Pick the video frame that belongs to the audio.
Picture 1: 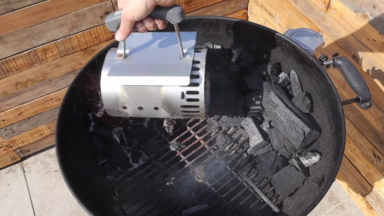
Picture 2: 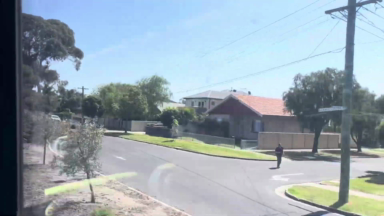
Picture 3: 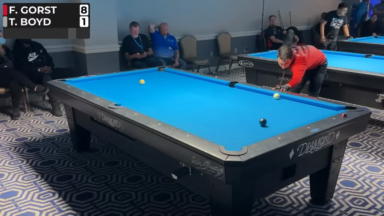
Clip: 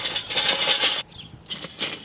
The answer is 1